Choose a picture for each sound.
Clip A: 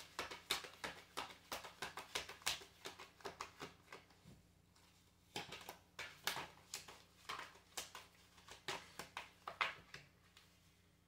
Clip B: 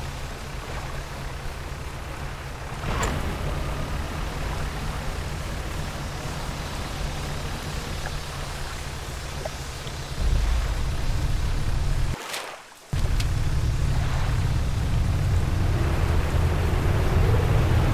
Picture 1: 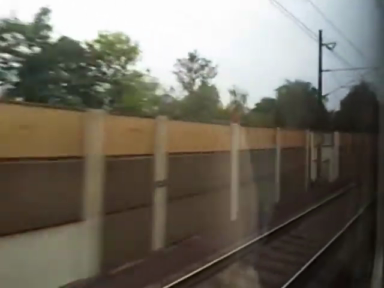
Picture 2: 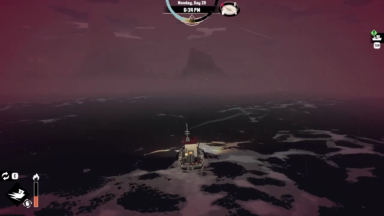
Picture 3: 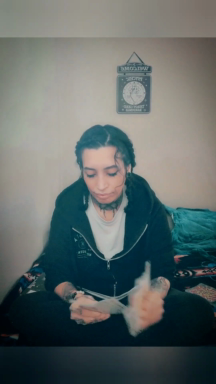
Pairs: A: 3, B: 2